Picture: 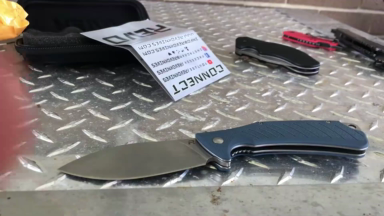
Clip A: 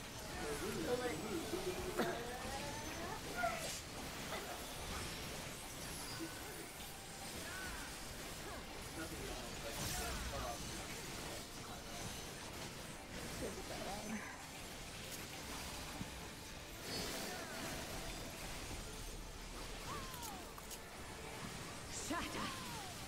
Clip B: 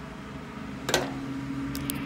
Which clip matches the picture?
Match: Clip B